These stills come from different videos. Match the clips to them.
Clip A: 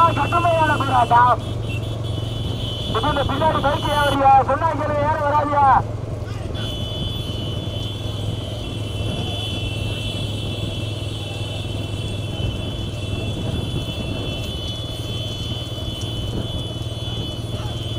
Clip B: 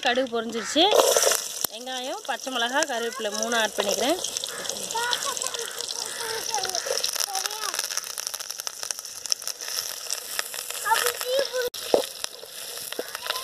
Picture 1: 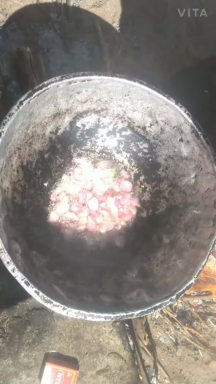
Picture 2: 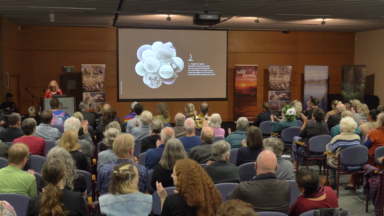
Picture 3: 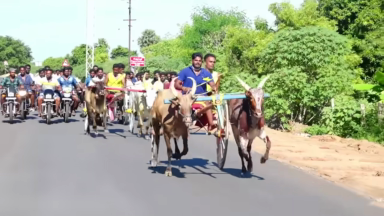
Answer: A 3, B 1